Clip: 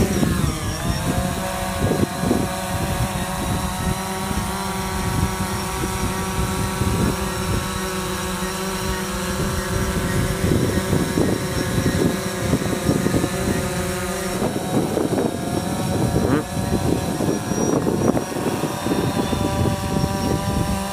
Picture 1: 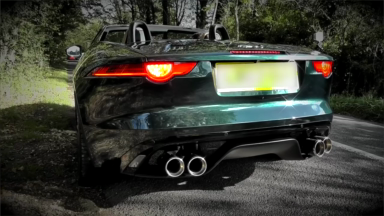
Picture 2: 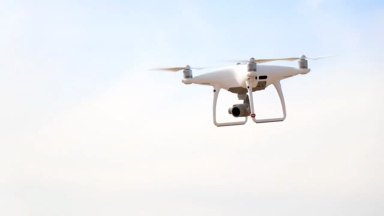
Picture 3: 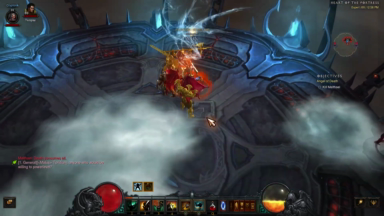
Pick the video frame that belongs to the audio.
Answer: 2